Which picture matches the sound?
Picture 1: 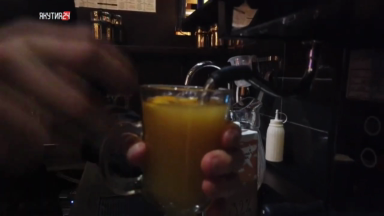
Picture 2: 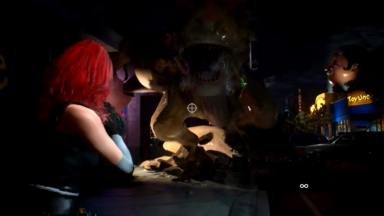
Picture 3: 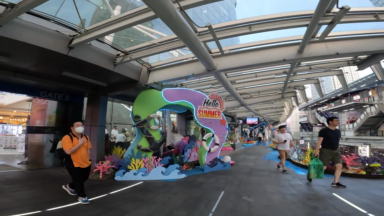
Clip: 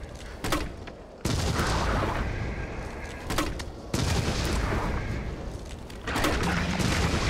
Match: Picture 2